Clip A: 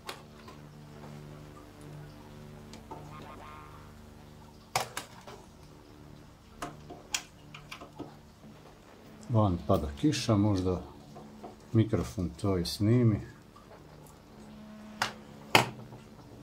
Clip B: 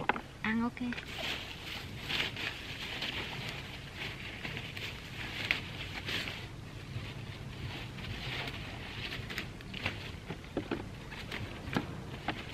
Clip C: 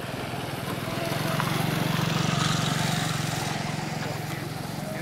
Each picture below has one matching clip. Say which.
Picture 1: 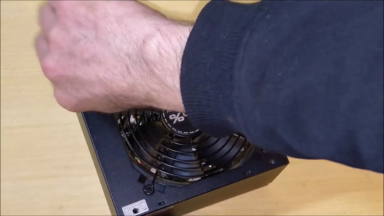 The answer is A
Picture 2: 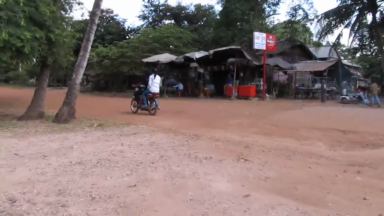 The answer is C